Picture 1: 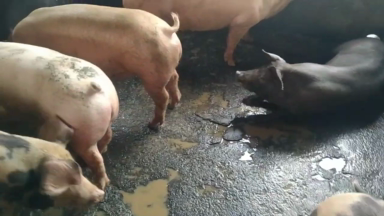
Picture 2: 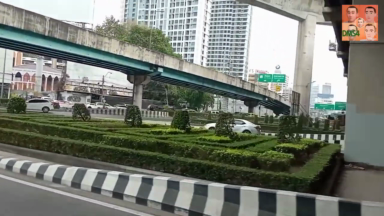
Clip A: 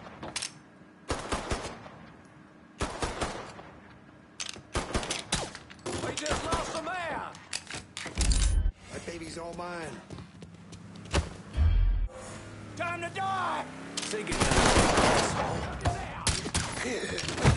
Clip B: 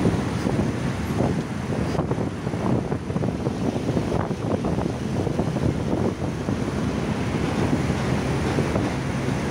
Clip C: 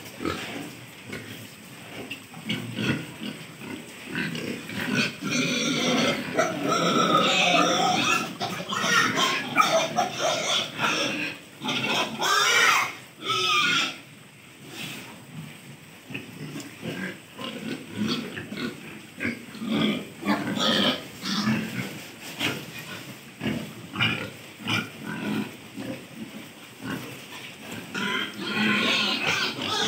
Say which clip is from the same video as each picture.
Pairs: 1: C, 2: B